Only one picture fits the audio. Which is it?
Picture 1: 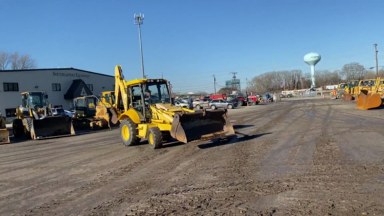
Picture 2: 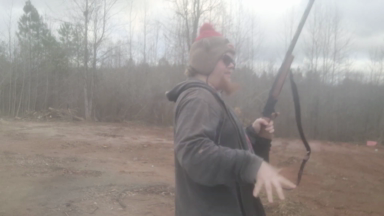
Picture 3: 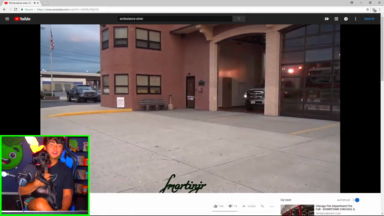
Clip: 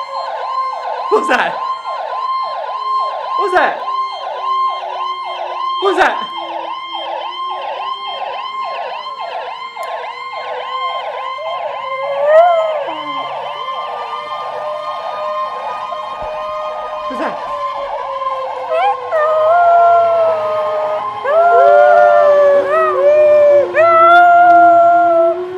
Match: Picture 3